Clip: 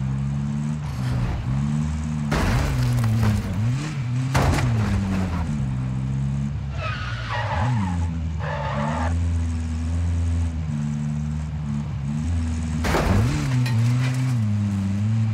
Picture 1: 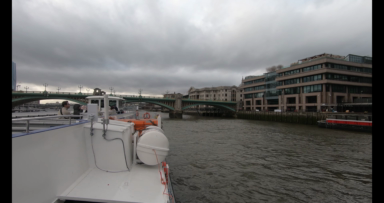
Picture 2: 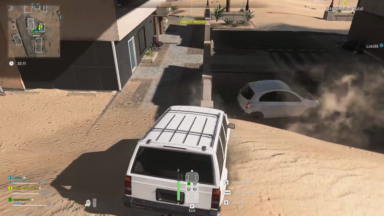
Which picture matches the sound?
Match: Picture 2